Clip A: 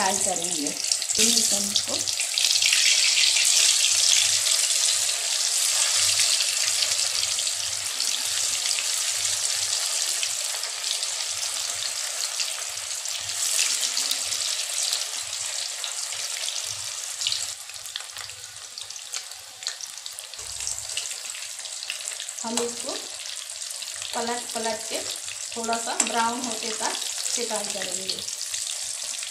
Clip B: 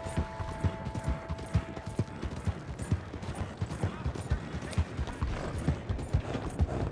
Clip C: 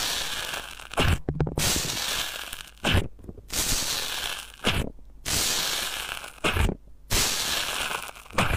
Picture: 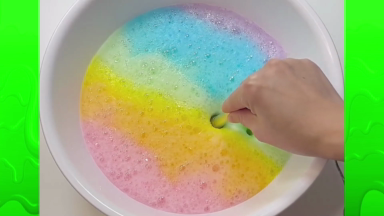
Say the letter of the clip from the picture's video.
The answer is C